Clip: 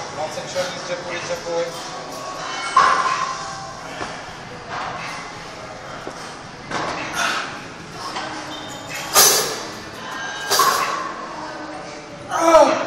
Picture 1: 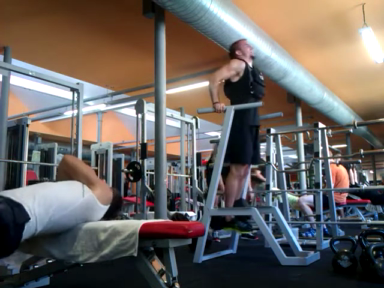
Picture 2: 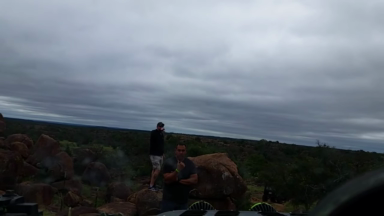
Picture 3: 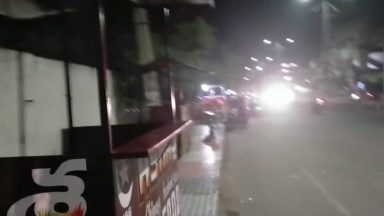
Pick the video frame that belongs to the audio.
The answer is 1